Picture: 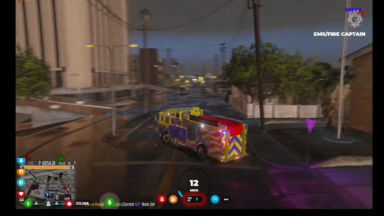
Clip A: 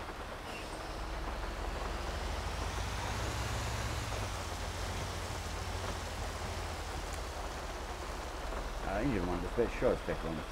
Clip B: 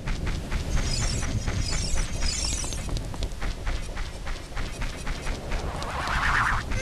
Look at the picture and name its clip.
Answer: A